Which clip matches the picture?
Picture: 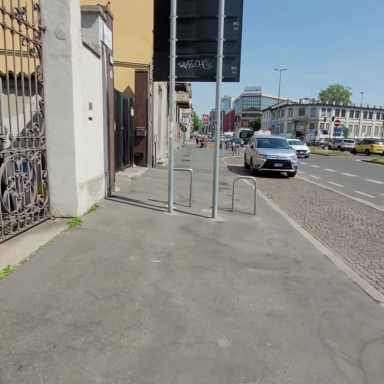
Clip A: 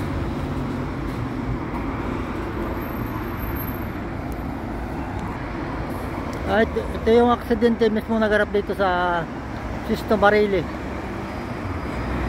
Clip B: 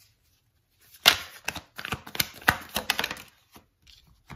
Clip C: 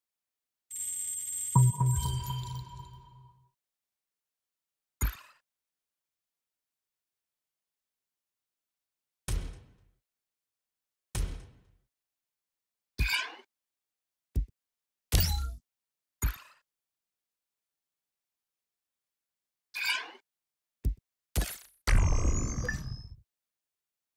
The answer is A